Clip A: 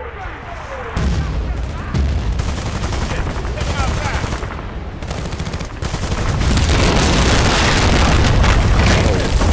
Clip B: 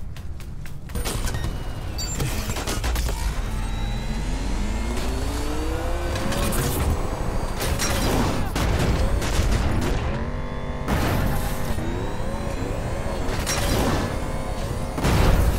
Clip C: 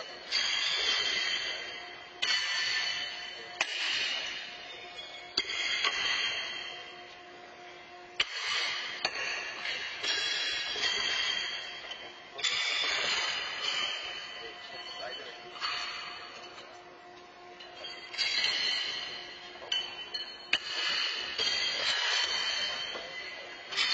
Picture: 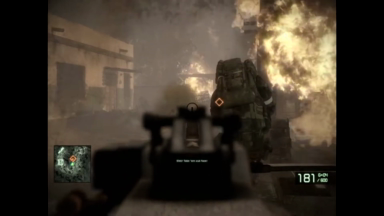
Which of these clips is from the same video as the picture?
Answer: A